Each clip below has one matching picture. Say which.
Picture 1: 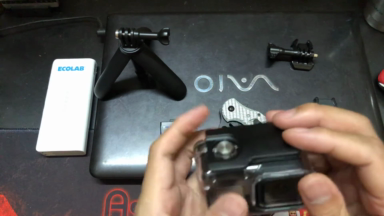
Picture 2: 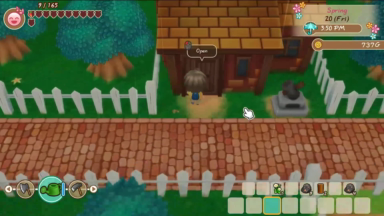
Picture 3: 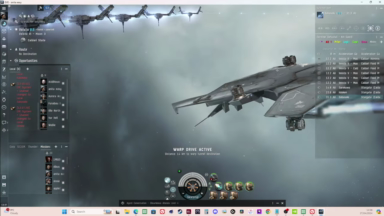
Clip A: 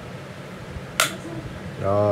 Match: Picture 1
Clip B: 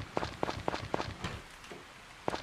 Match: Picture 2